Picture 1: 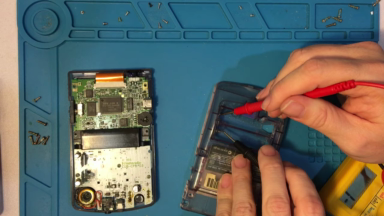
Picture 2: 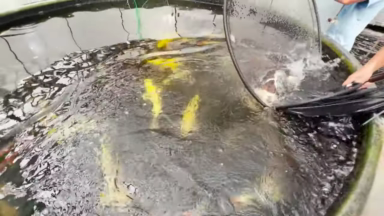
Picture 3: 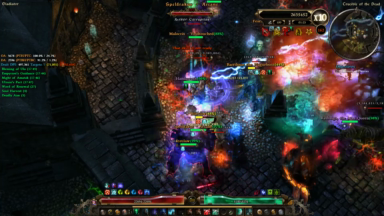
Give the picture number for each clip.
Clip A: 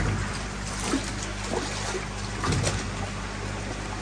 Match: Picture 2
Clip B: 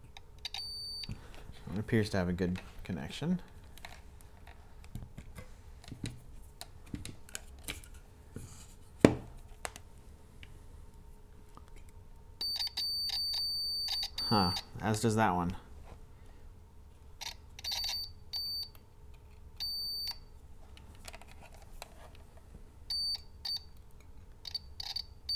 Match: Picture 1